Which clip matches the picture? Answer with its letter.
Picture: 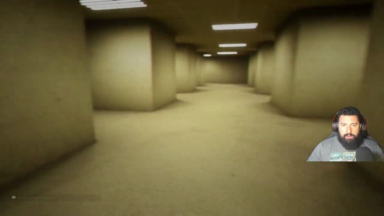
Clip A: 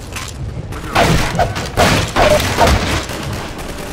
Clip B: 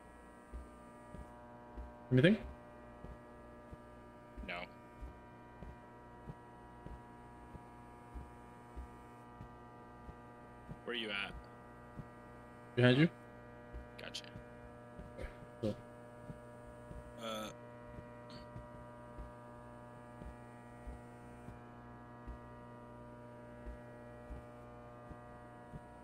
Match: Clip B